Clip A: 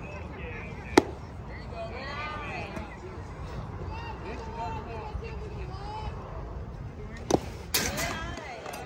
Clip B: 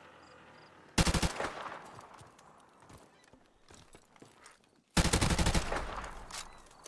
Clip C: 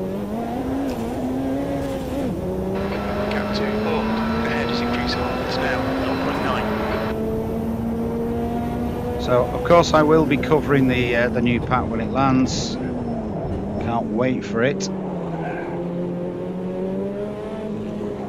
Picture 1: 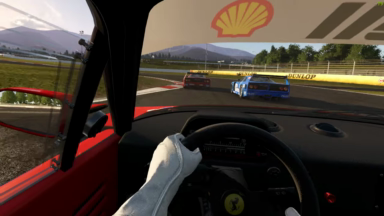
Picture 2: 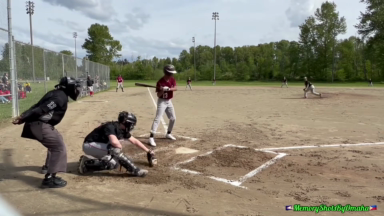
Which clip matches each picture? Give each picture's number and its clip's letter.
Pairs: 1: C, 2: A